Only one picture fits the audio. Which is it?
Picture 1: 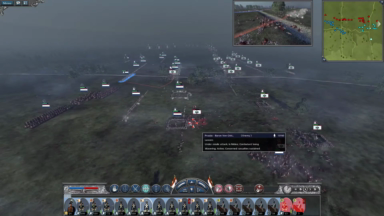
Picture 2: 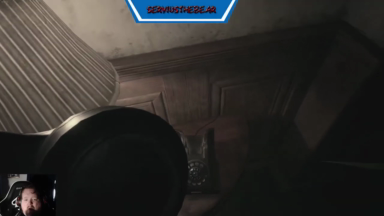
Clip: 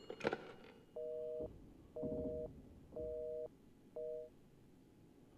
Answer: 2